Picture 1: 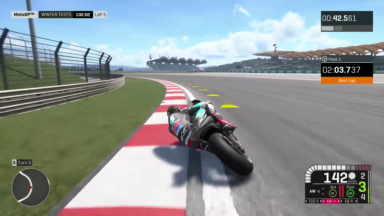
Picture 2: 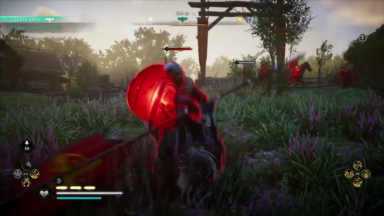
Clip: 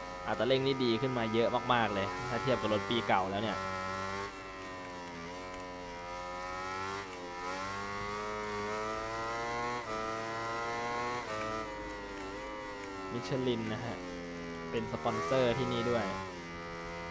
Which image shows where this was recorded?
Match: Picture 1